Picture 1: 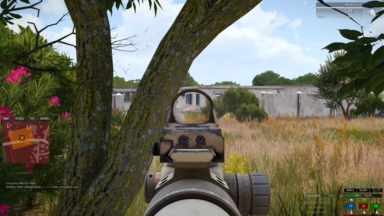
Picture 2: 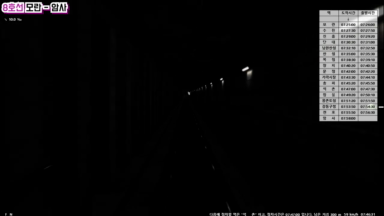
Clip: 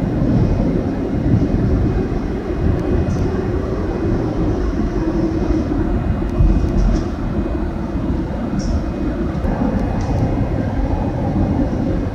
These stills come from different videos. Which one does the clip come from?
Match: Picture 2